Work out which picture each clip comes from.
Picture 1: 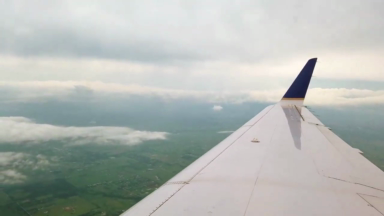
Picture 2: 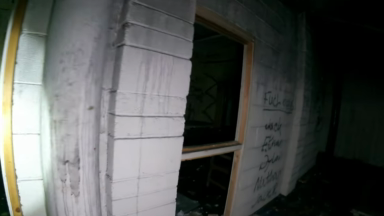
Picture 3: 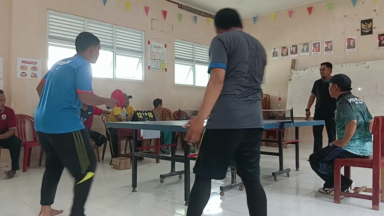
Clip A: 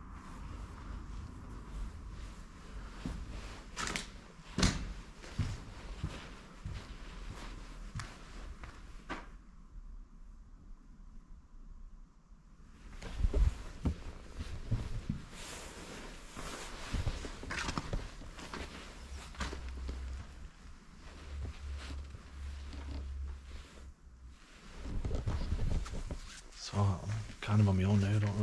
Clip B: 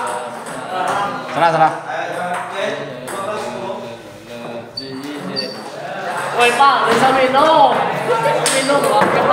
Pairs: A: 2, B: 3